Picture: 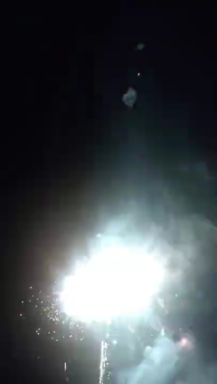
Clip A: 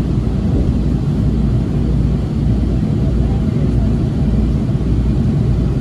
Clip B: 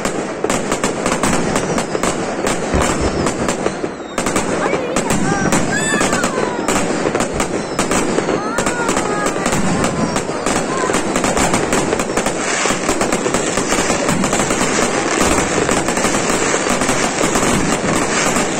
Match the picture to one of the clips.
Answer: B